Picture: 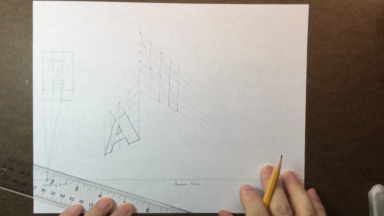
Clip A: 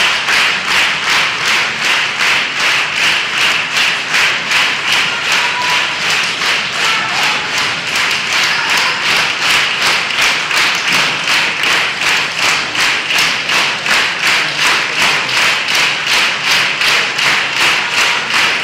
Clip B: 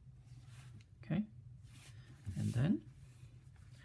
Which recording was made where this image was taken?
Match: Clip B